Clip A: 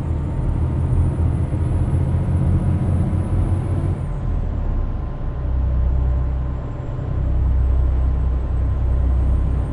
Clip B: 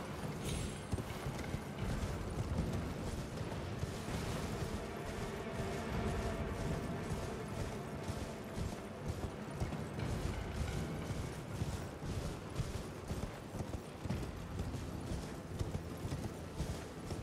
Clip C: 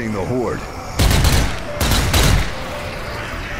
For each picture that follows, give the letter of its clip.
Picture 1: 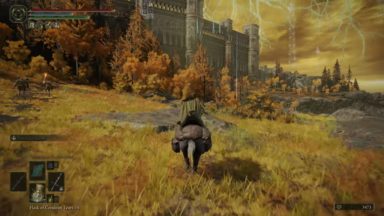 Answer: B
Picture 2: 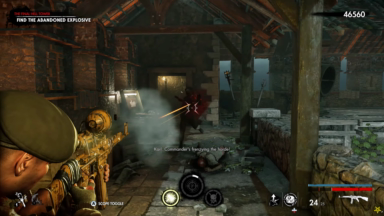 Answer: C